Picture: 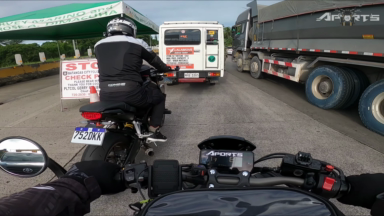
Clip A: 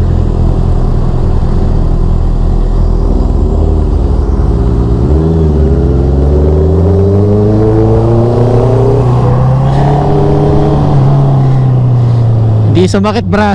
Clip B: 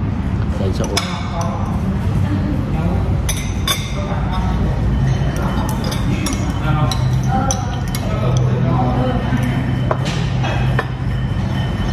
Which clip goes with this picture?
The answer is A